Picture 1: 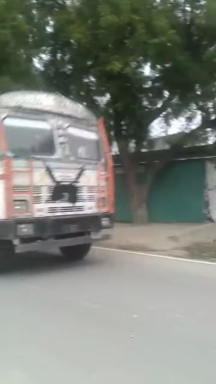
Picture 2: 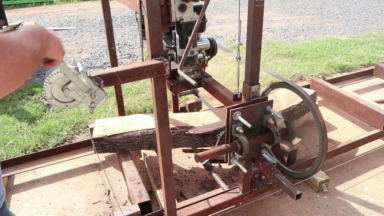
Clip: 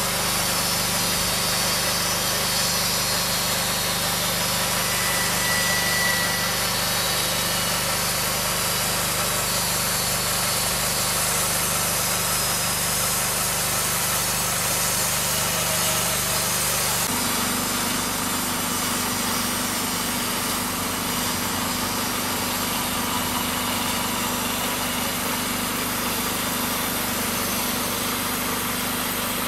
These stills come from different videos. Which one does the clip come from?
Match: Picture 2